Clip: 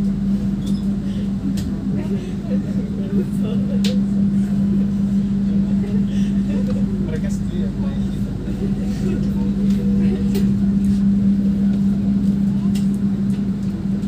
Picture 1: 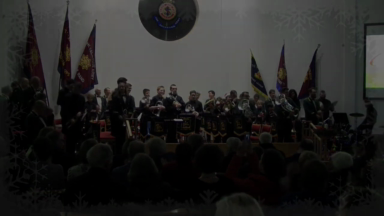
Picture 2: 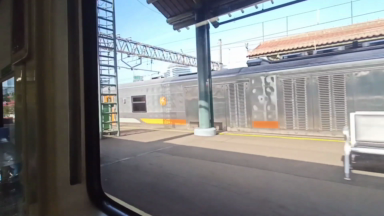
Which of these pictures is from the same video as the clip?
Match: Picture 2